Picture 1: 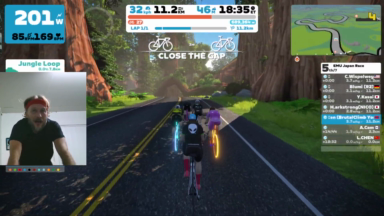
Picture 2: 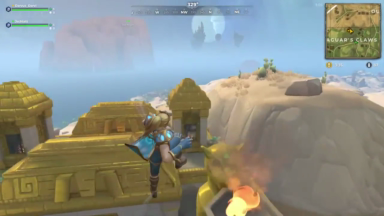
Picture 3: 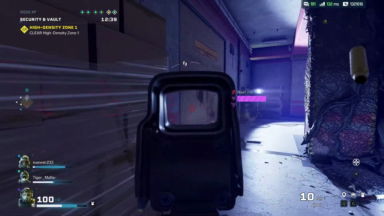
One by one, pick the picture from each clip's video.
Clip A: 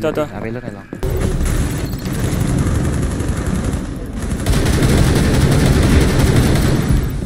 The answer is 3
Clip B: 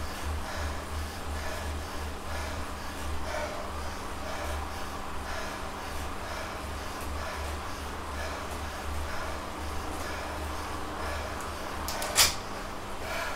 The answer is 1